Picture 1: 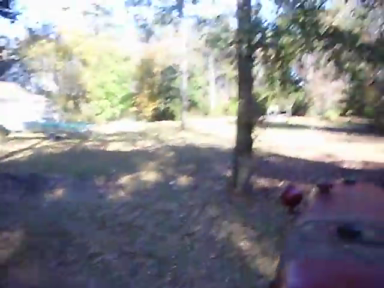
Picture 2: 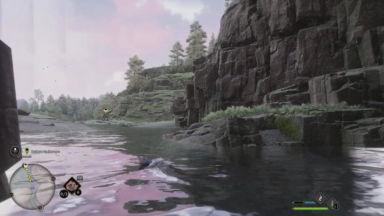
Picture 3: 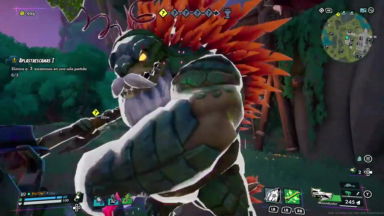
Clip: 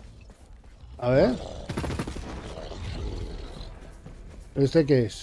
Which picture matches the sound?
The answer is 3